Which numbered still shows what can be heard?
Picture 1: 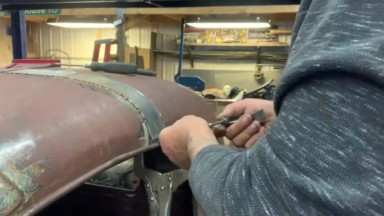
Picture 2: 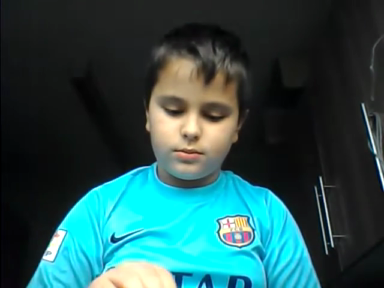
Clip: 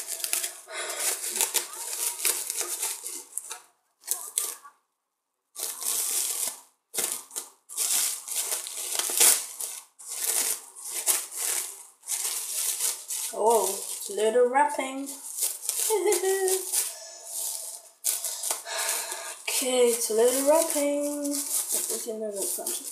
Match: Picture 2